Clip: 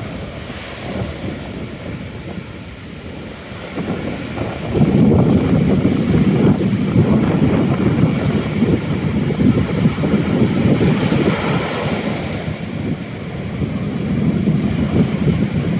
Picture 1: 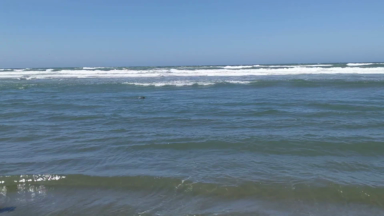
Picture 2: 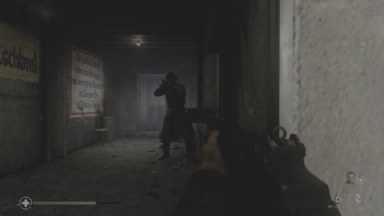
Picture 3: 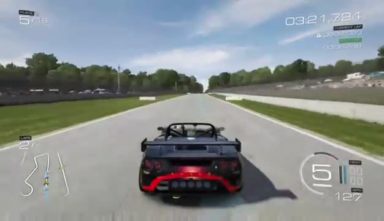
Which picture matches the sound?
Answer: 1